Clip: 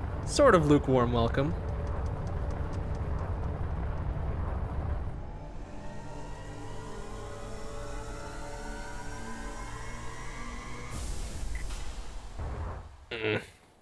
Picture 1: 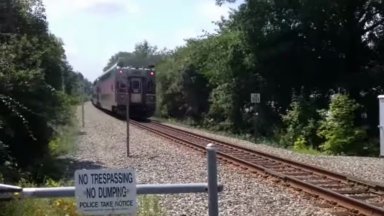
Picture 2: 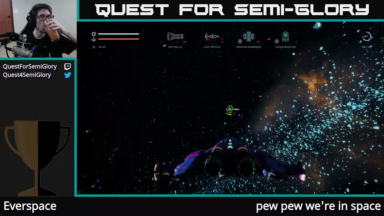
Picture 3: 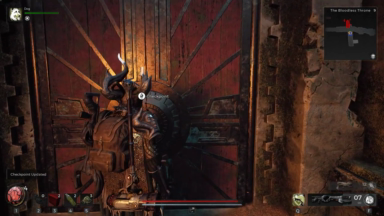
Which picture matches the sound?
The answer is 2